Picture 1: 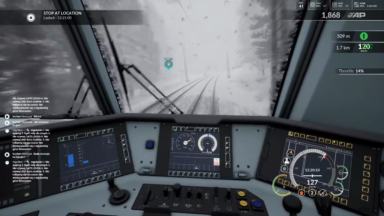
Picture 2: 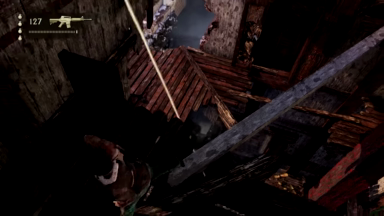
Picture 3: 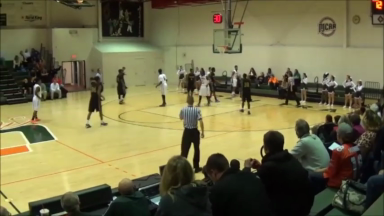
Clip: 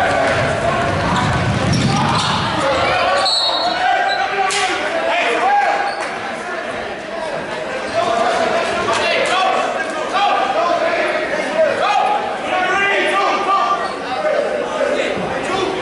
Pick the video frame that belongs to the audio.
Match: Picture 3